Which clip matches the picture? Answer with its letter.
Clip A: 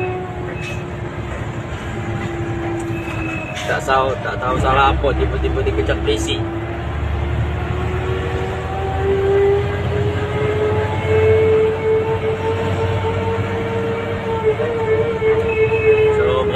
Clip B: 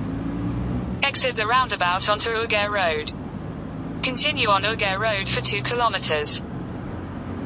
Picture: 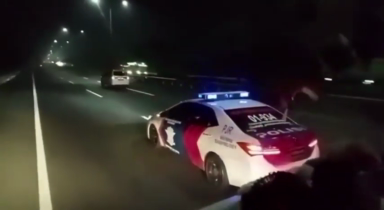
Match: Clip A